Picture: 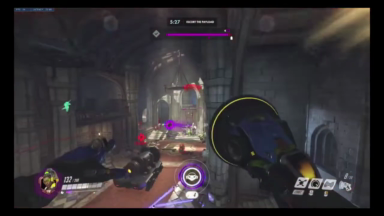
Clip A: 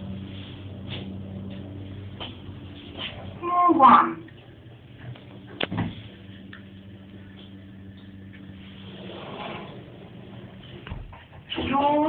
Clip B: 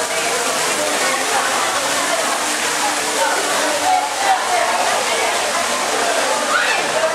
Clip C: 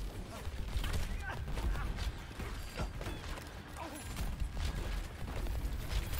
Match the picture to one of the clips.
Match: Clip C